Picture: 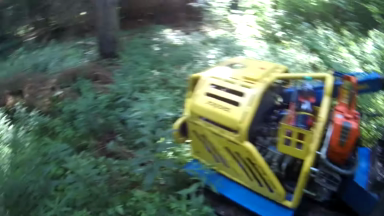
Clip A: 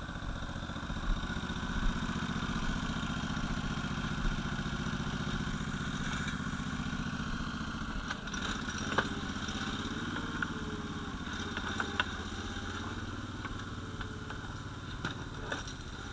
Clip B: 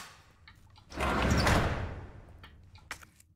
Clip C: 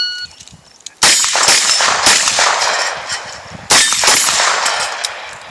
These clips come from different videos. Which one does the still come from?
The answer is A